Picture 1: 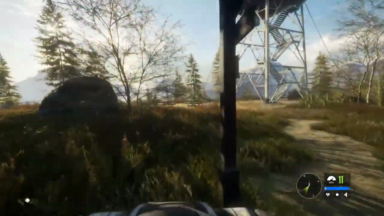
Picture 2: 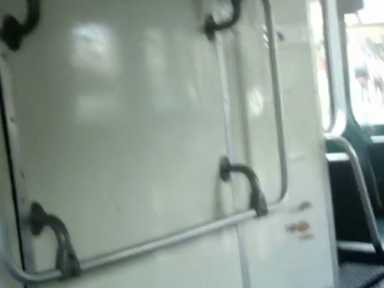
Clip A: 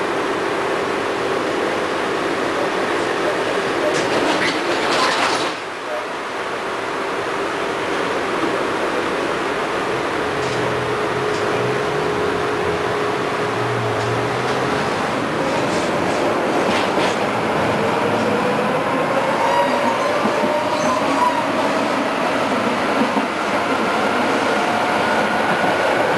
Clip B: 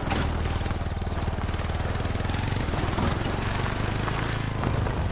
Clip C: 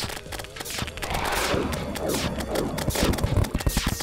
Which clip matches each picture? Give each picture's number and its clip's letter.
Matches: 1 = B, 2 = A